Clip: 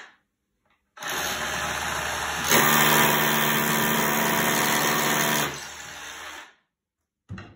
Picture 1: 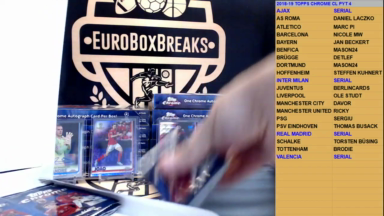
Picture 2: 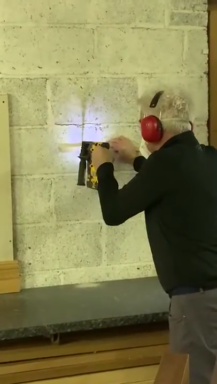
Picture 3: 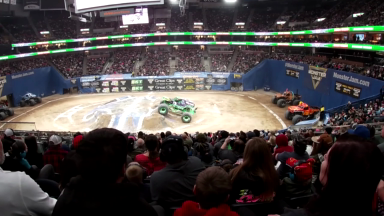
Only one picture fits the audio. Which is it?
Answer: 2